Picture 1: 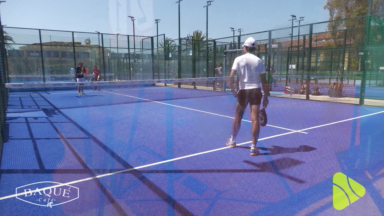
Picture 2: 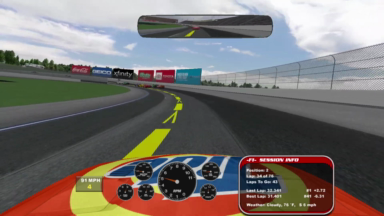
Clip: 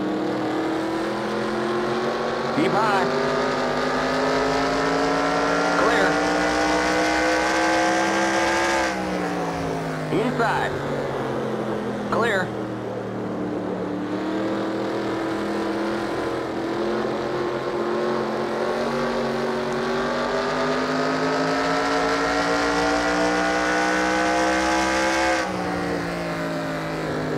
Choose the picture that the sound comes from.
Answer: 2